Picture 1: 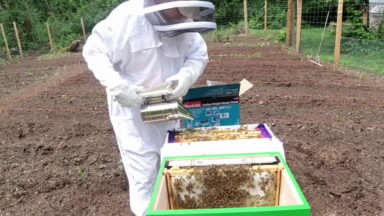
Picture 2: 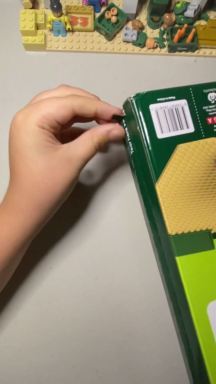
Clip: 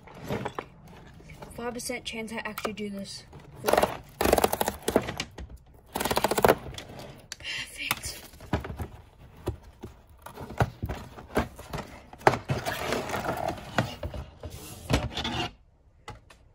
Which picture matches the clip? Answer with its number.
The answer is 2